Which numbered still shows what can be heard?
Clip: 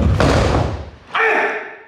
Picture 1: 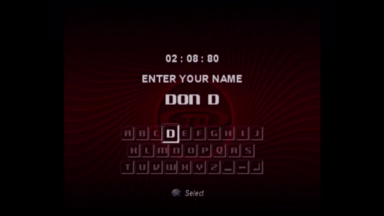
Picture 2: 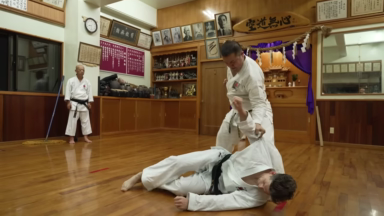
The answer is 2